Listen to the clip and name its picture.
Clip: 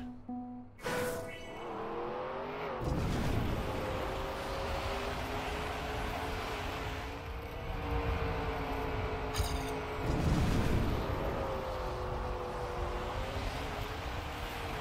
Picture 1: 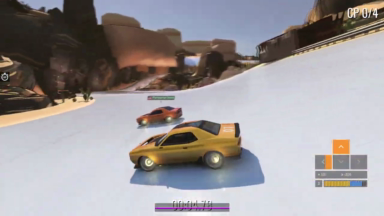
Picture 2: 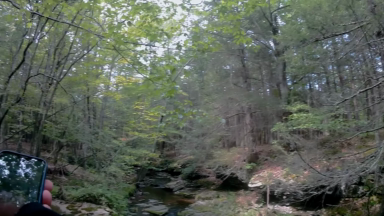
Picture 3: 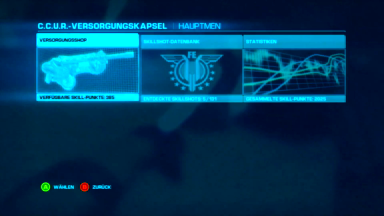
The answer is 1